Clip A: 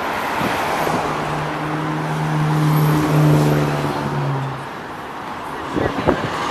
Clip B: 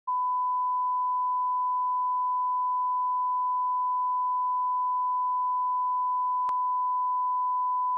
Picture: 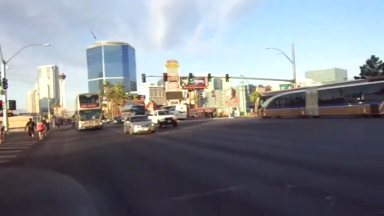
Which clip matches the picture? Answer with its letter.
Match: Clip A